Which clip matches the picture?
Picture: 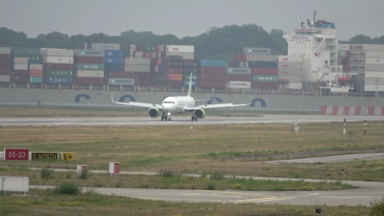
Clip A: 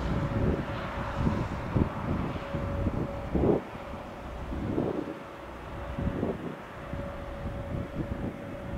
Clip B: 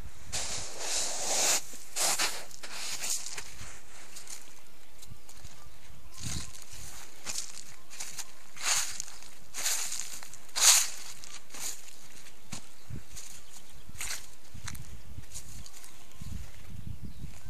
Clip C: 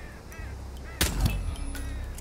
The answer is A